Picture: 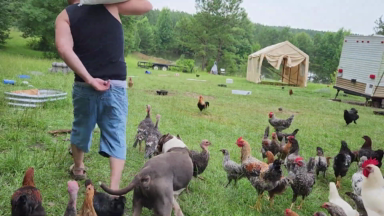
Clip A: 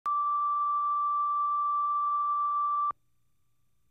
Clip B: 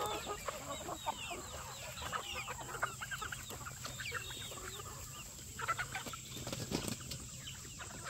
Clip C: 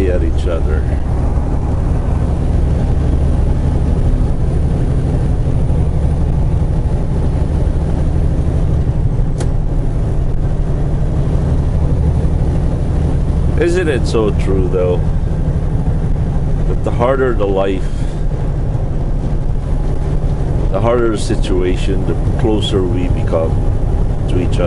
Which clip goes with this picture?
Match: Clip B